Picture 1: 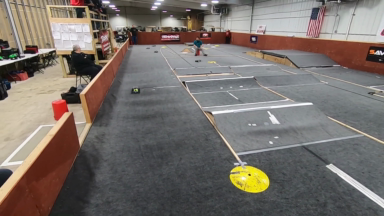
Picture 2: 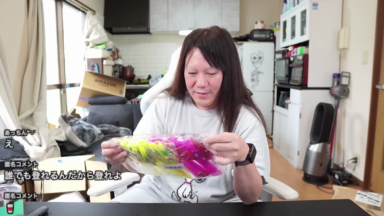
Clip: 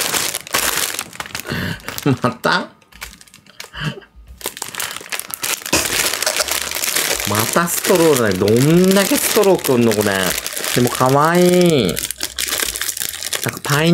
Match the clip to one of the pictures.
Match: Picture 2